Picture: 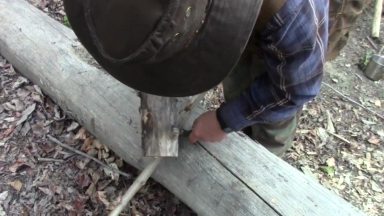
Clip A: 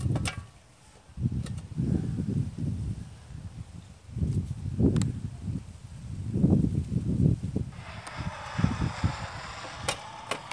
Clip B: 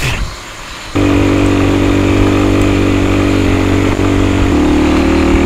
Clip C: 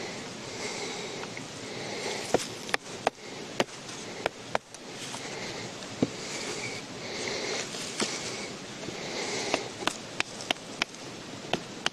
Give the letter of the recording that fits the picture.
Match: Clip C